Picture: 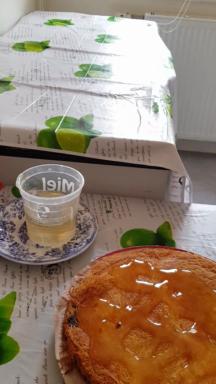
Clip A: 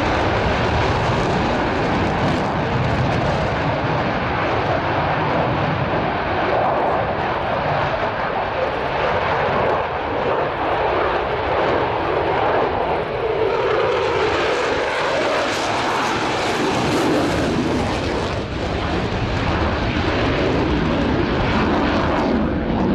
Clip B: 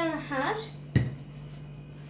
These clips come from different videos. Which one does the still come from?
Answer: B